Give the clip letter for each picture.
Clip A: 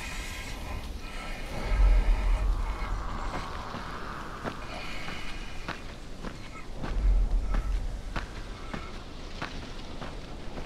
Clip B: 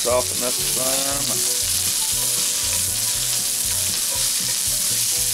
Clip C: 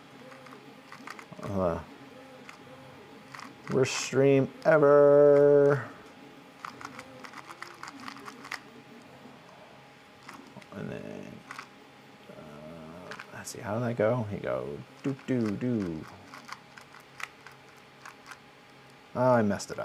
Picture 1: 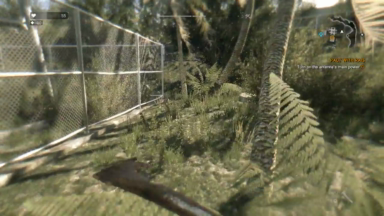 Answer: A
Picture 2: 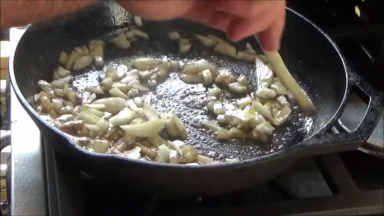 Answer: B